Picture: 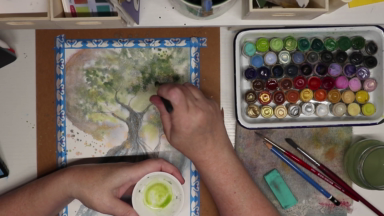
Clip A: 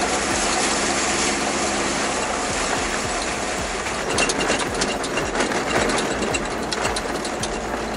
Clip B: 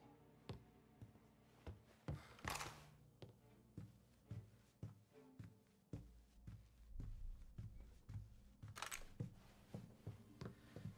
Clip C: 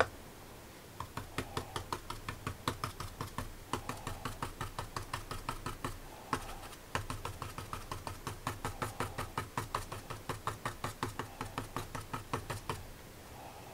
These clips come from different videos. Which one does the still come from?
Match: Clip C